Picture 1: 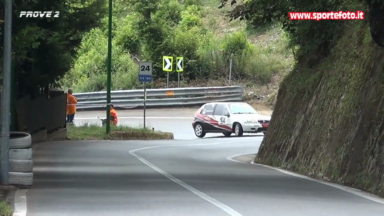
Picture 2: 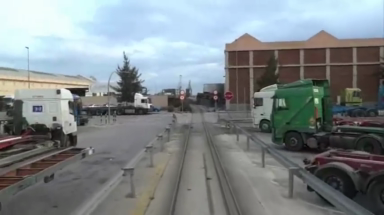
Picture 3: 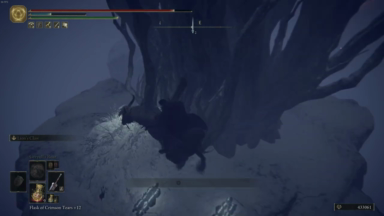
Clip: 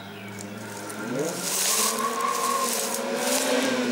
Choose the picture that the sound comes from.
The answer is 1